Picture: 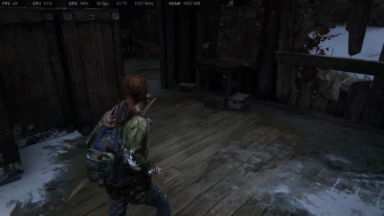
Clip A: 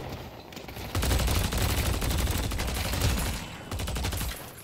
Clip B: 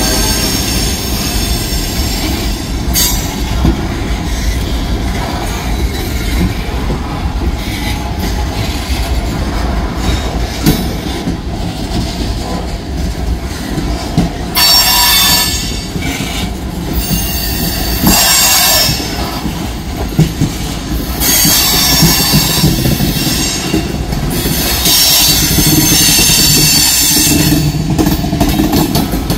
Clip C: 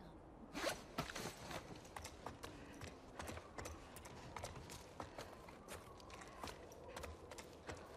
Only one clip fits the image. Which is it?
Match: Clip C